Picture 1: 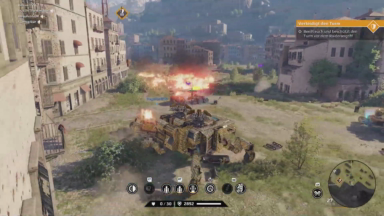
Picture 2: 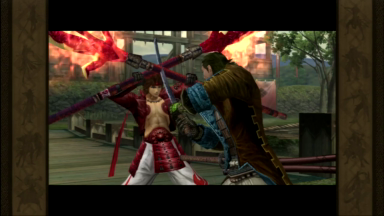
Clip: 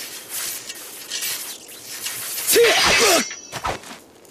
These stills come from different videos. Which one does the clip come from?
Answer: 2